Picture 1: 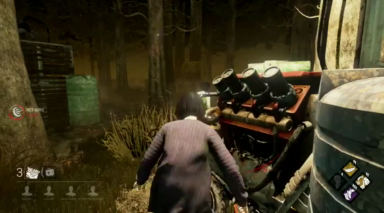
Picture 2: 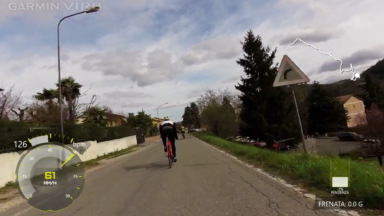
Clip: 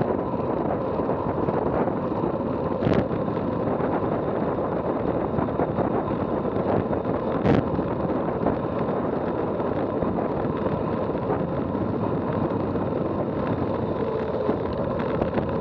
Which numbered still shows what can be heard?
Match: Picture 2